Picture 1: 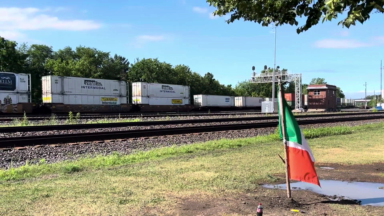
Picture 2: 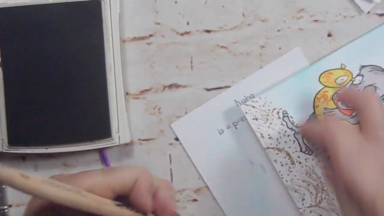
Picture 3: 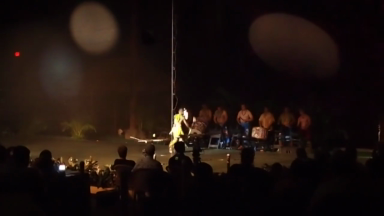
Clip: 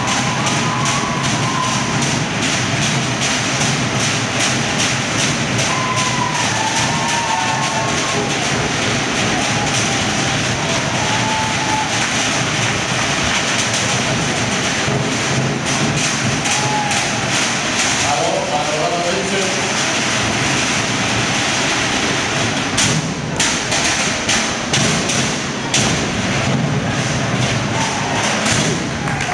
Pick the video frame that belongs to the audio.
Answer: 3